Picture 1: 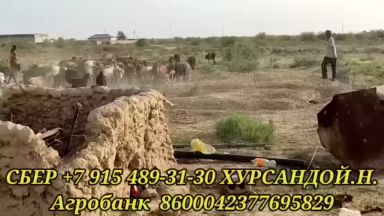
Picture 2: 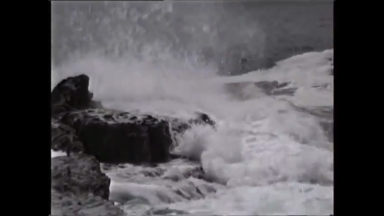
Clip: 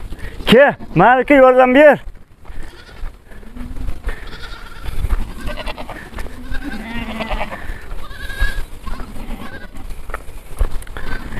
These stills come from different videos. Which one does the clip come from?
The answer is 1